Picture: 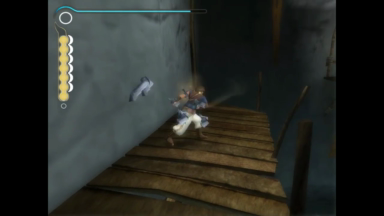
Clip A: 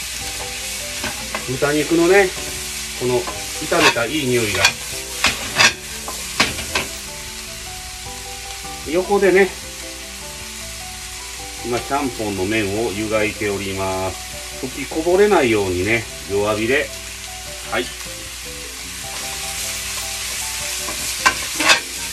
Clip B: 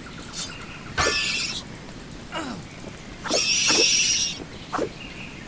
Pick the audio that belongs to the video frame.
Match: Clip B